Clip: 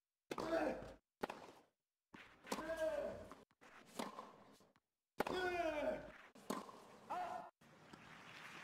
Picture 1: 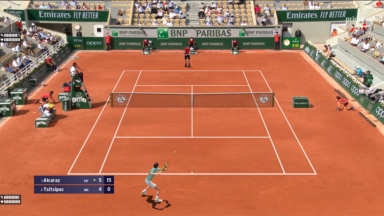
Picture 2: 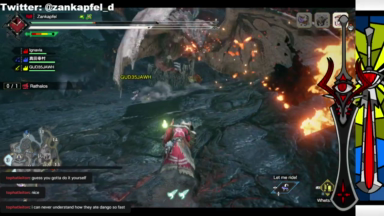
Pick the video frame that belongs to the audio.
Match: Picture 1